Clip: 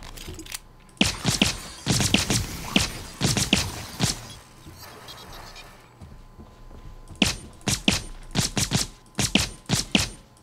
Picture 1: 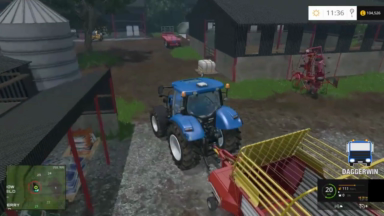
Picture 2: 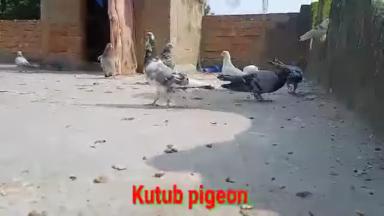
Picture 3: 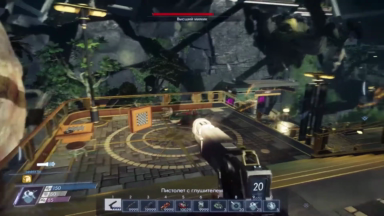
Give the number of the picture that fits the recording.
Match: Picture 3